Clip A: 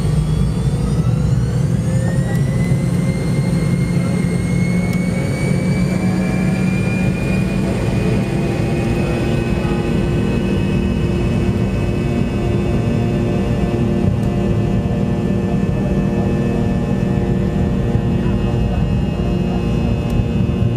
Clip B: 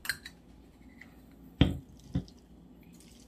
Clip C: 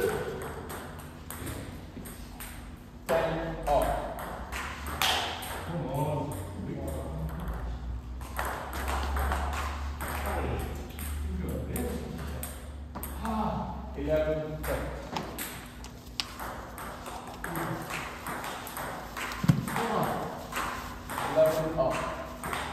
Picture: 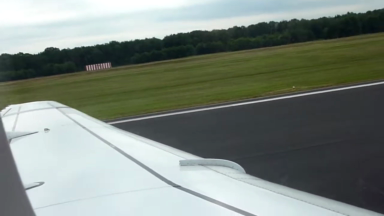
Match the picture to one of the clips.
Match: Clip A